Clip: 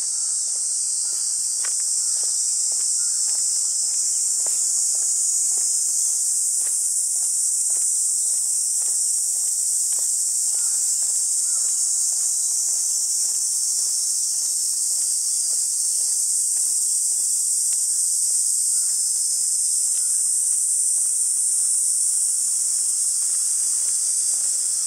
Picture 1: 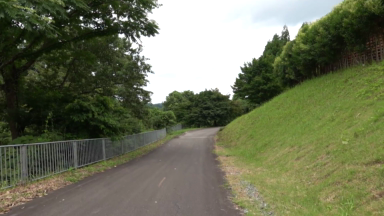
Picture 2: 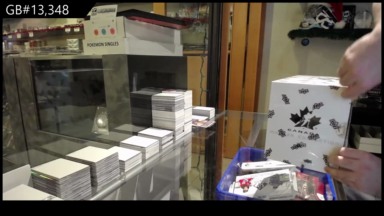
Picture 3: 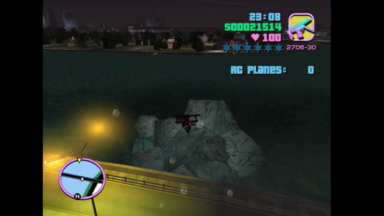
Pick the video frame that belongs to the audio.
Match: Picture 1